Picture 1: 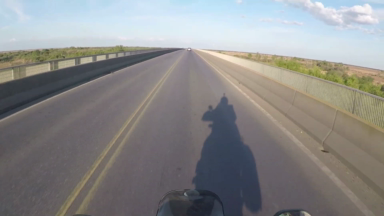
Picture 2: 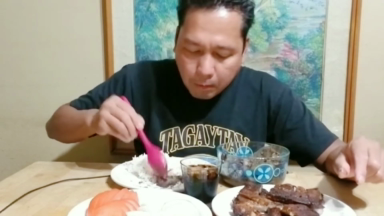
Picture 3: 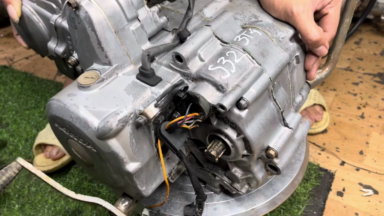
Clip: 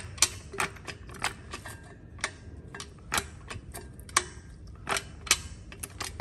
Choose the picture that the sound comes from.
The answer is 3